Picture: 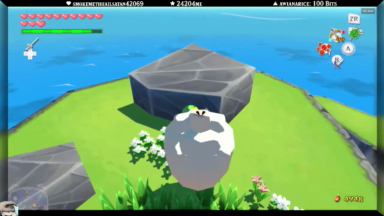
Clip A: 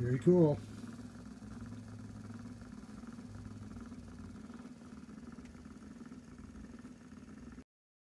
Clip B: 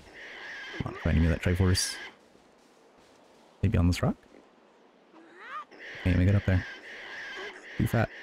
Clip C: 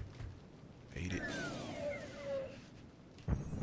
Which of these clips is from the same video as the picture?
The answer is B